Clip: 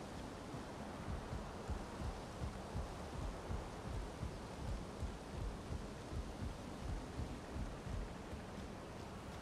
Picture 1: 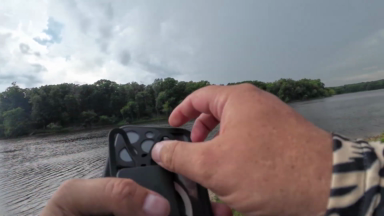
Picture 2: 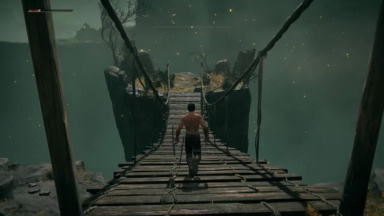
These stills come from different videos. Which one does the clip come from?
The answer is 2